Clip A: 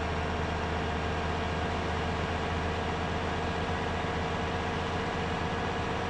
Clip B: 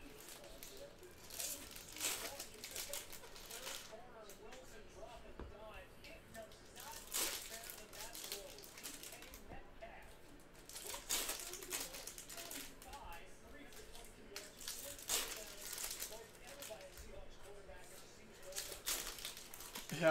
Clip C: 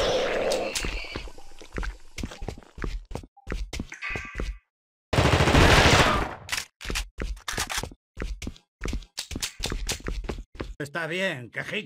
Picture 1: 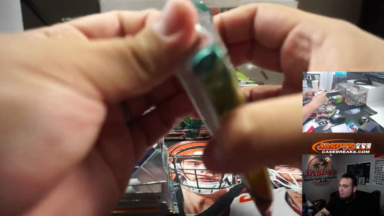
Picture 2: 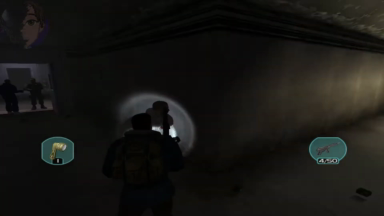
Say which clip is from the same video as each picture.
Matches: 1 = B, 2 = C